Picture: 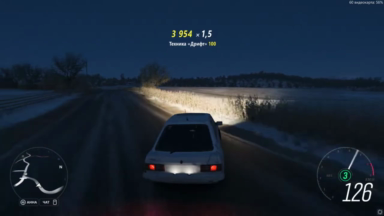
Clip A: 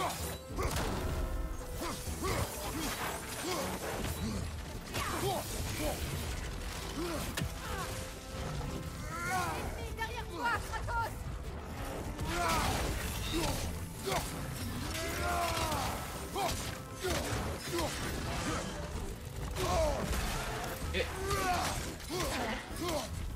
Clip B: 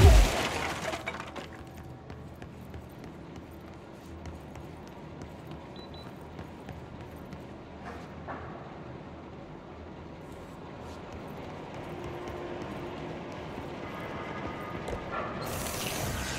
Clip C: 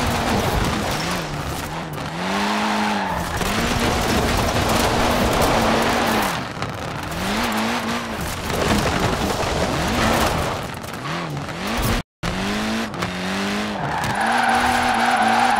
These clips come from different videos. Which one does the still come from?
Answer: C